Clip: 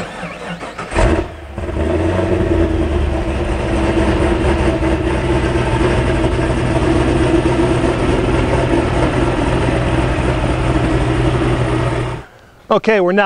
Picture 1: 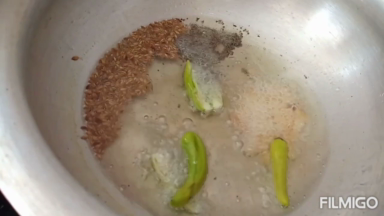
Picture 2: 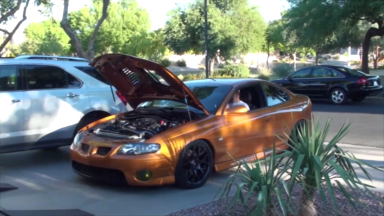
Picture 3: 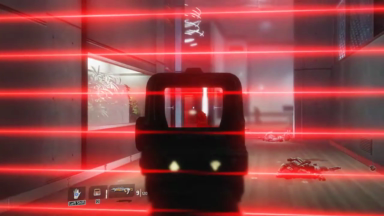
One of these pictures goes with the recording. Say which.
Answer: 2